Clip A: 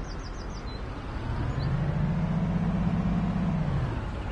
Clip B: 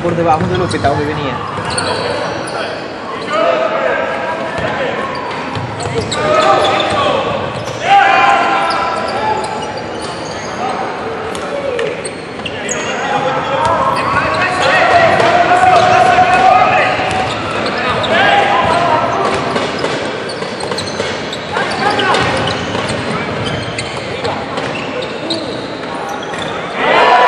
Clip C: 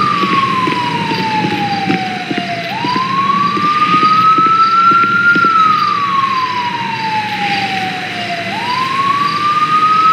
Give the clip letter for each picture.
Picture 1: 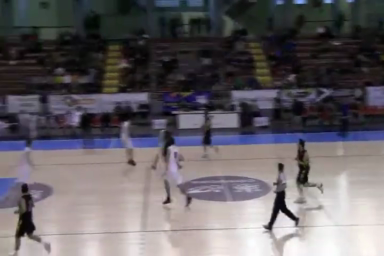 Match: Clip B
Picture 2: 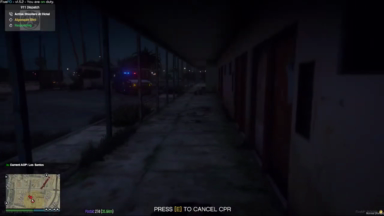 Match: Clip C